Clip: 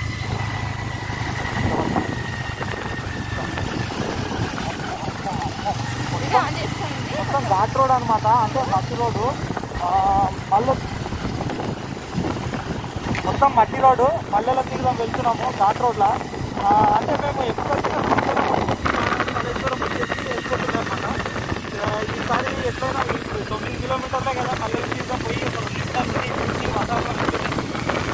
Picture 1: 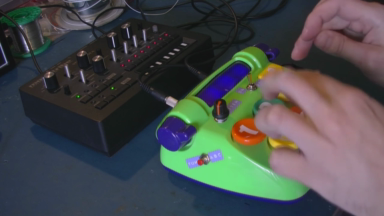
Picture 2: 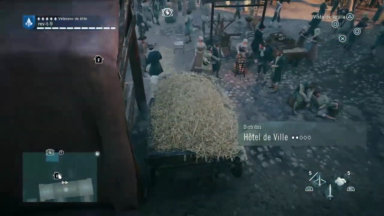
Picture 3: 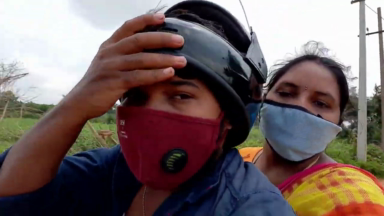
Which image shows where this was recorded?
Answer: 3